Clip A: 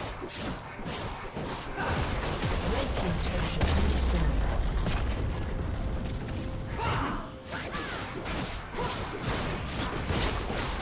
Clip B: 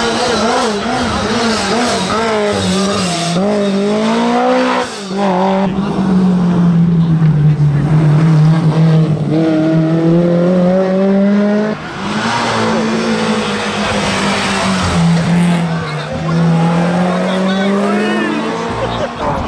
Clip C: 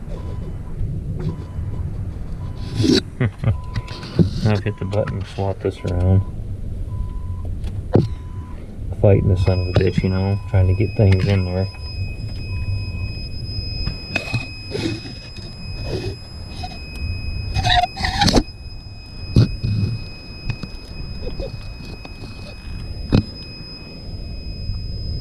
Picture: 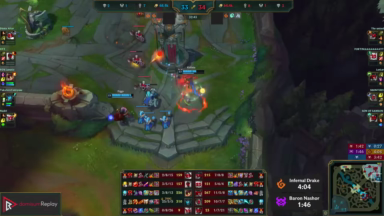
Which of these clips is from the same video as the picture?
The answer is A